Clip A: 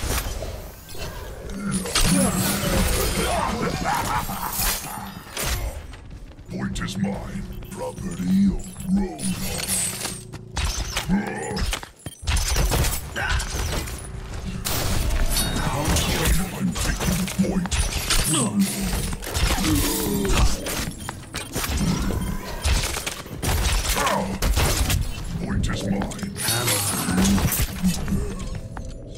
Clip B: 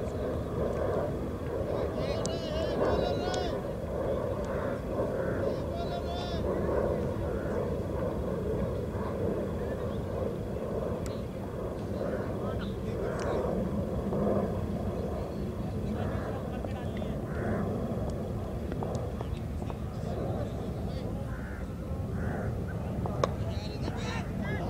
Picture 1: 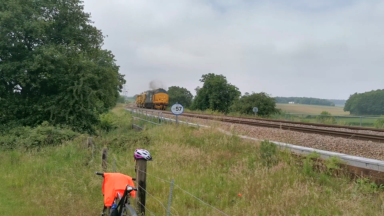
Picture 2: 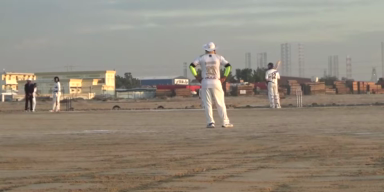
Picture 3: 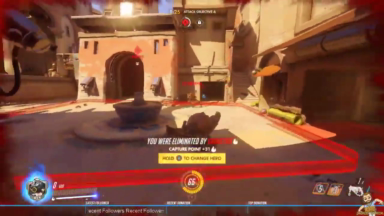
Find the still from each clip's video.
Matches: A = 3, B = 2